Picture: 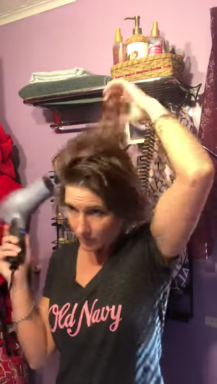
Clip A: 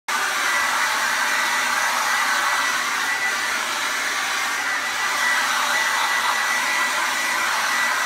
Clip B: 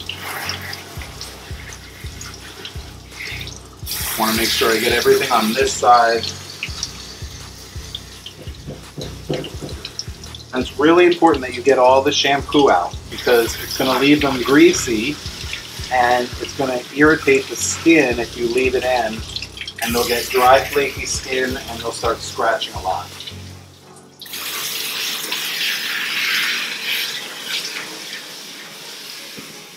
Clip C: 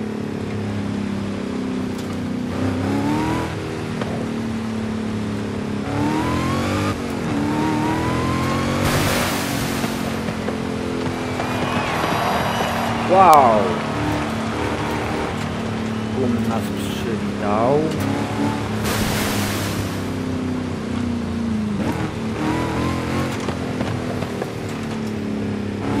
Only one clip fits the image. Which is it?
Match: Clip A